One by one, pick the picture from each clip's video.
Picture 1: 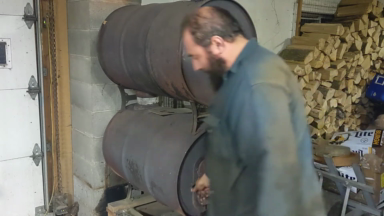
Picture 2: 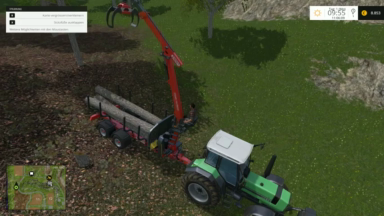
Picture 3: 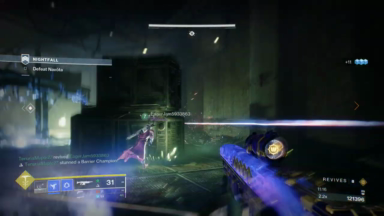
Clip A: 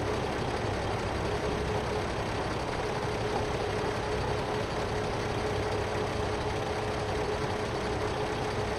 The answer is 2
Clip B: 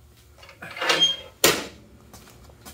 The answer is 1